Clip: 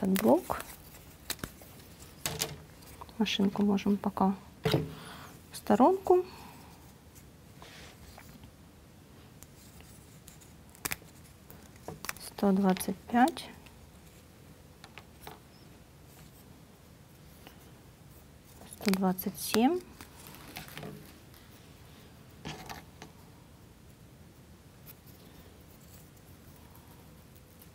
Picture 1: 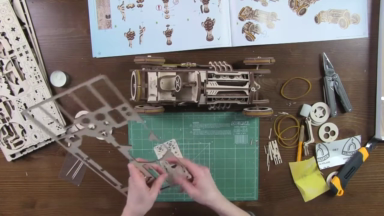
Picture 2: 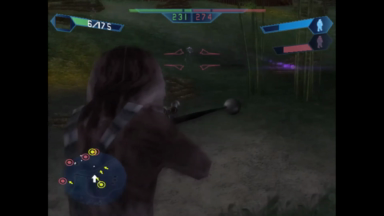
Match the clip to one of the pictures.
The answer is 1